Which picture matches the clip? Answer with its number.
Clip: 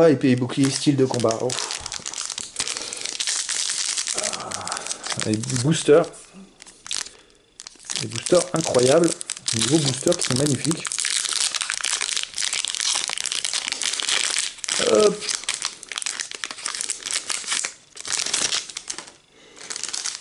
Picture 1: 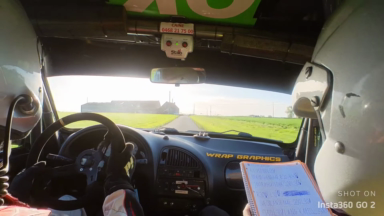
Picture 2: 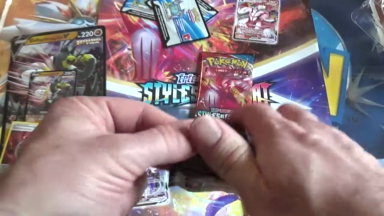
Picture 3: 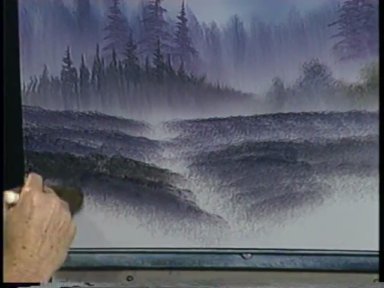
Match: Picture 2